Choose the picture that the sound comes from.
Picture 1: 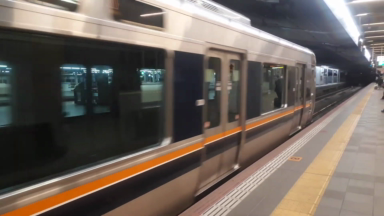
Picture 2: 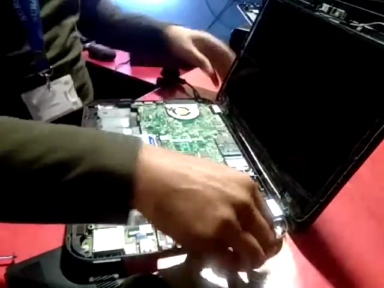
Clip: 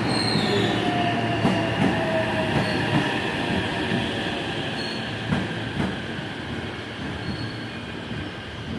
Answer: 1